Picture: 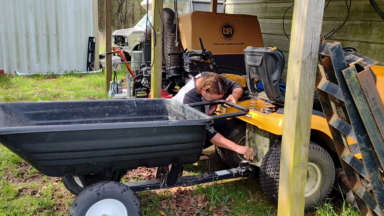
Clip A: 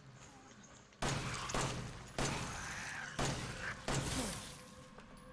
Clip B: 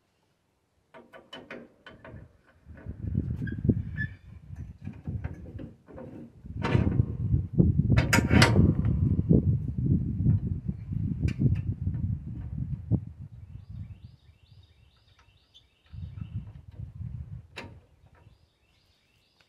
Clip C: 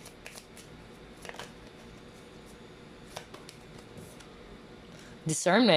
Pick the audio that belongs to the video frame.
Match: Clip B